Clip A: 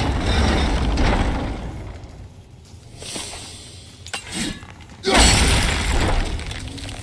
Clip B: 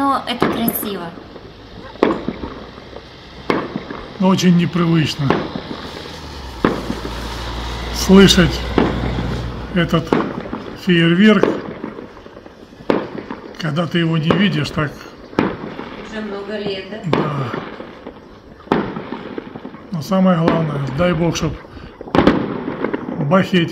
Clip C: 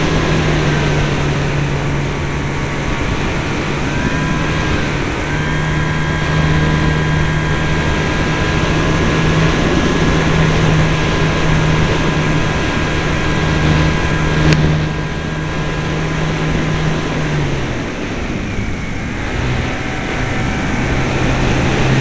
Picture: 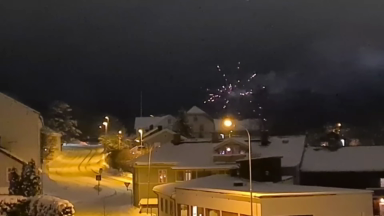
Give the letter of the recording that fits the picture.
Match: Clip B